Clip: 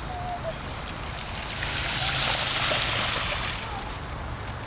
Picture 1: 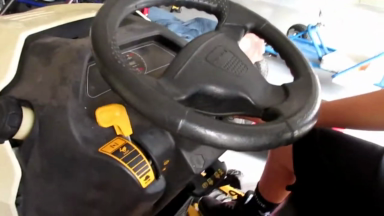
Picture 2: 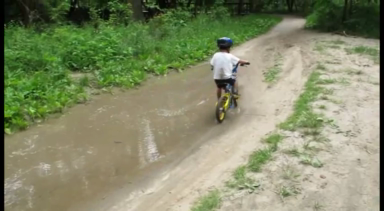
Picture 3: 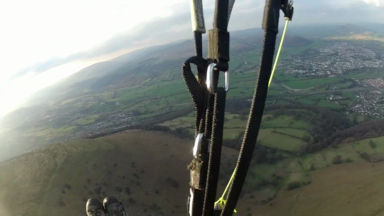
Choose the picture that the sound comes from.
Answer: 2